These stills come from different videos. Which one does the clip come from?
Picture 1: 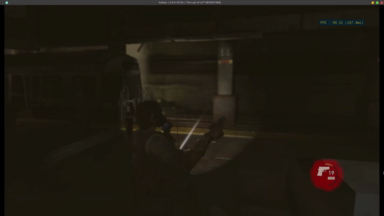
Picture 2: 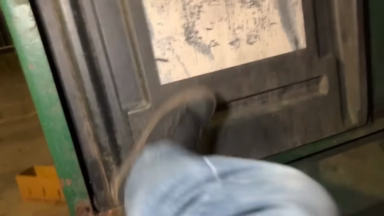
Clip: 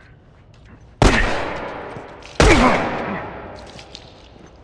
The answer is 1